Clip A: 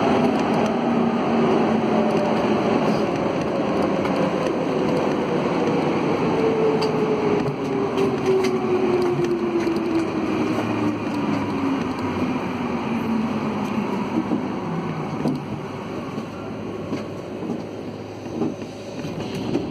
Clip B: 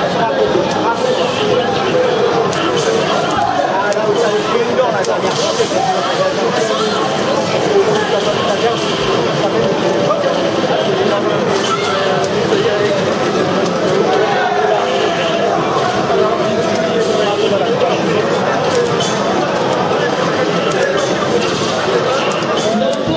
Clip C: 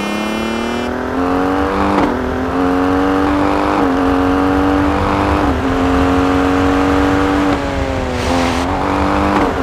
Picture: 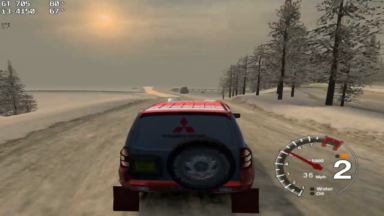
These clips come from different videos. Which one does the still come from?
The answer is C